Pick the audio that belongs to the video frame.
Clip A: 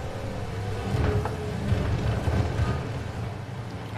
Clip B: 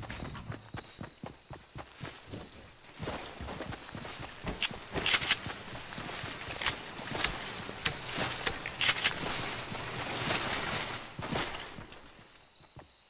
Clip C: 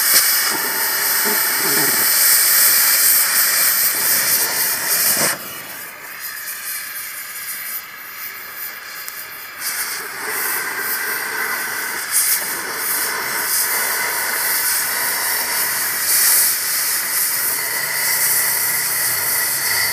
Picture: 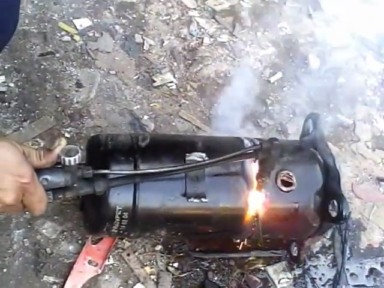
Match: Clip C